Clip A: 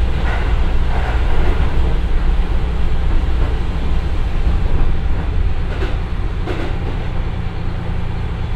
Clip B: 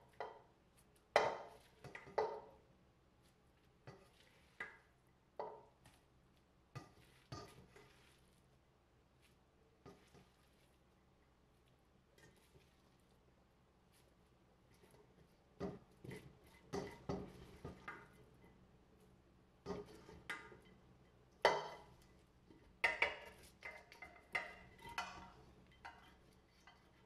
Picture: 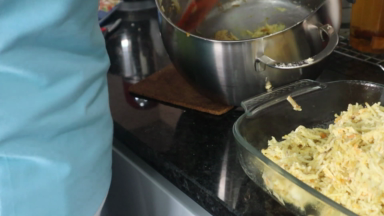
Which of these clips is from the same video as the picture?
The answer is B